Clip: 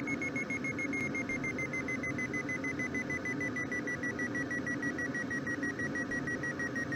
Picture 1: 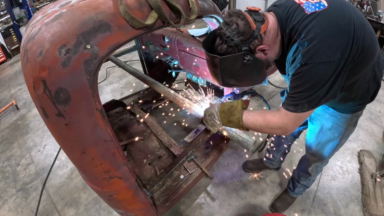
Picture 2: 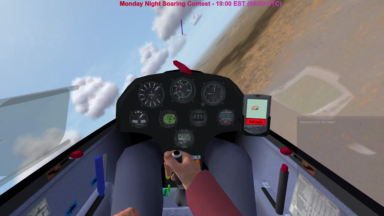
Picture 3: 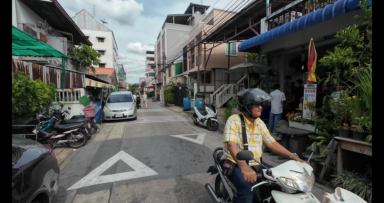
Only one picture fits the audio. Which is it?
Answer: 2